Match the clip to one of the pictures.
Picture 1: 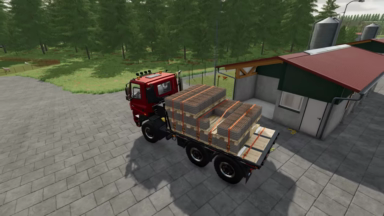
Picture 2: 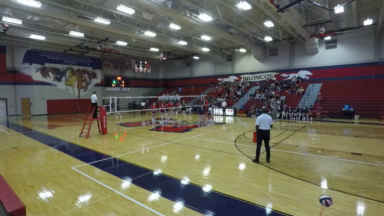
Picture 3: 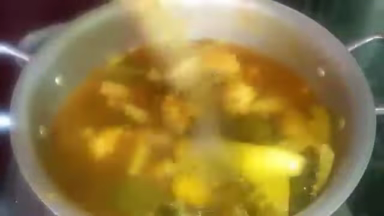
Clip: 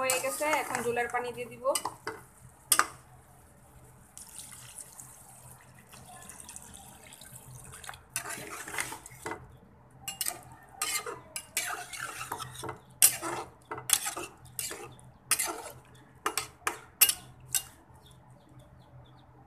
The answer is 3